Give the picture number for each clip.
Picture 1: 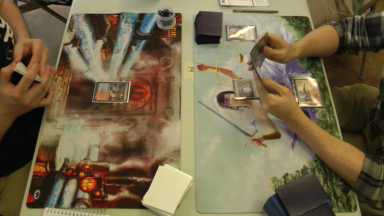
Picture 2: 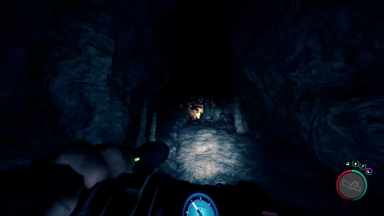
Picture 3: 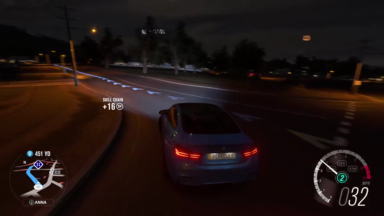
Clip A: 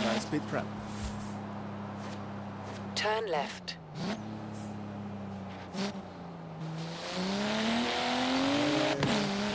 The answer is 3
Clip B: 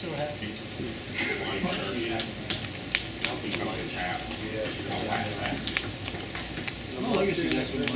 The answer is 1